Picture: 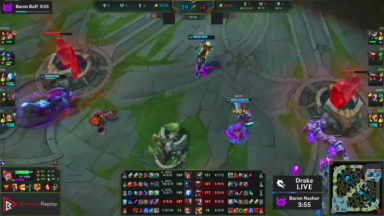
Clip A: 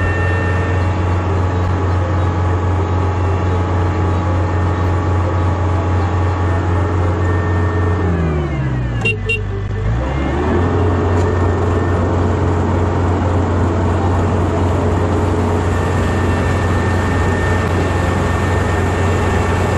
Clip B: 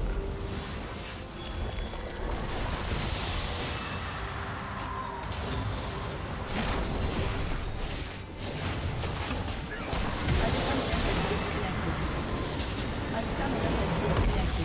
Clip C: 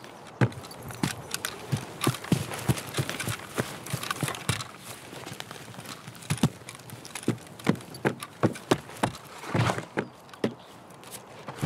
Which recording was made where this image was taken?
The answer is B